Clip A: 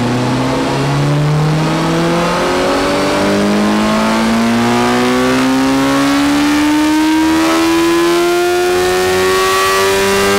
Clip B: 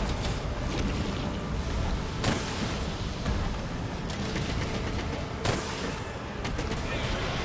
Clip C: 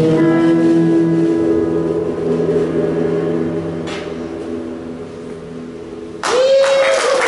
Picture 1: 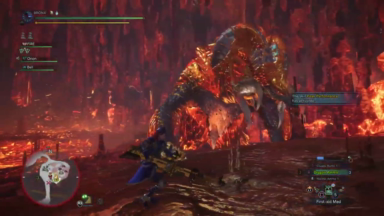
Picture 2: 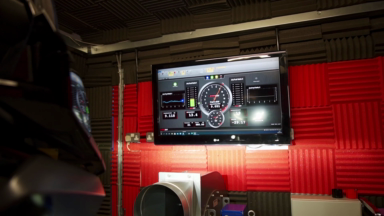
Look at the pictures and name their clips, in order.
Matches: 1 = B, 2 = A